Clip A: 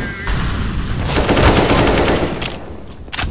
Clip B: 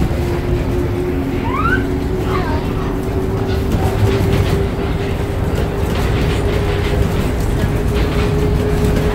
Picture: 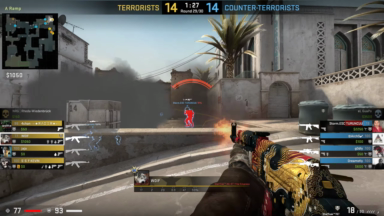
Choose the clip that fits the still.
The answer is A